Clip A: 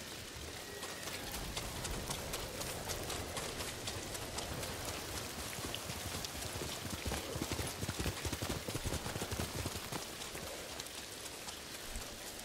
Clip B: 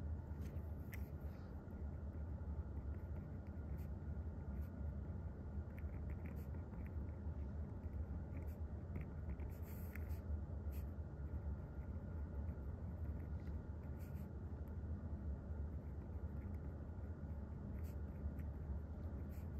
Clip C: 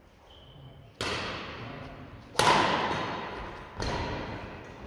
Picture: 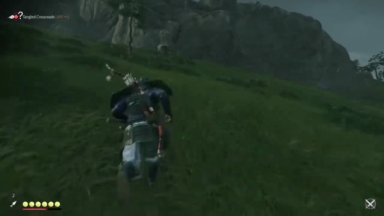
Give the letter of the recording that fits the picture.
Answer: A